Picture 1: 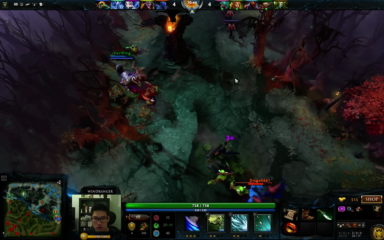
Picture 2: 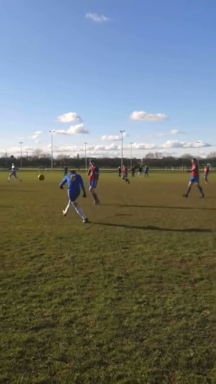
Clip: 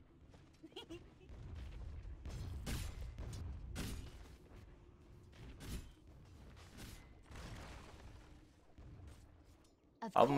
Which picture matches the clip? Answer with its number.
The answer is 1